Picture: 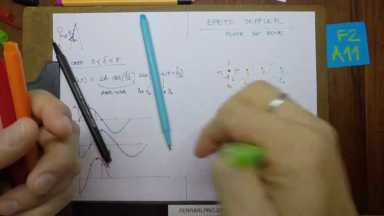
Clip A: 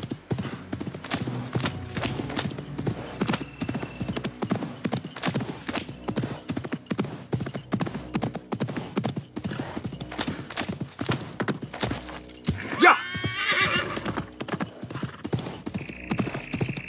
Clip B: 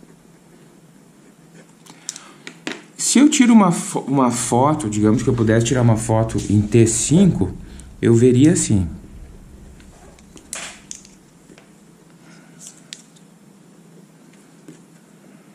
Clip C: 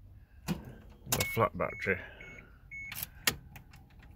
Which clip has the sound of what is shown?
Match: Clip B